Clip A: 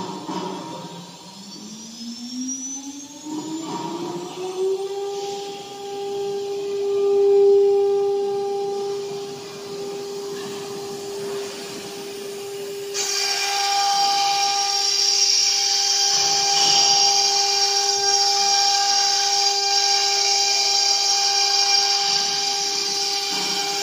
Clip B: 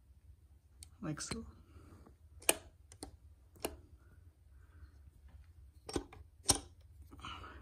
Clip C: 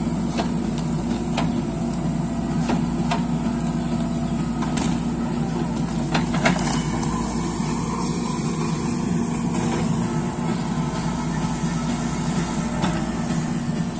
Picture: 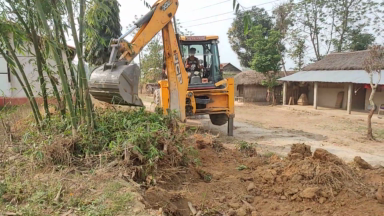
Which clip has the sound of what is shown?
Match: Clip C